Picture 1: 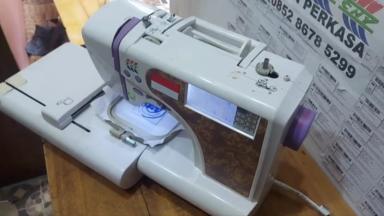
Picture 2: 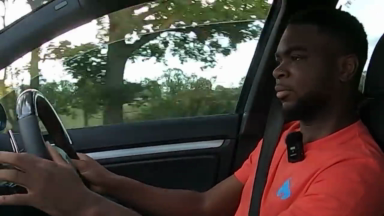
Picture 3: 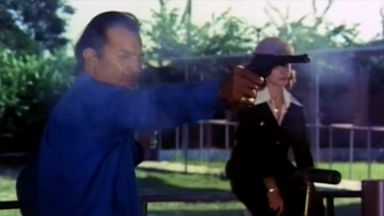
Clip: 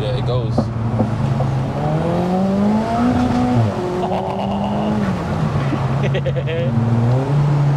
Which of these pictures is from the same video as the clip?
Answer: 2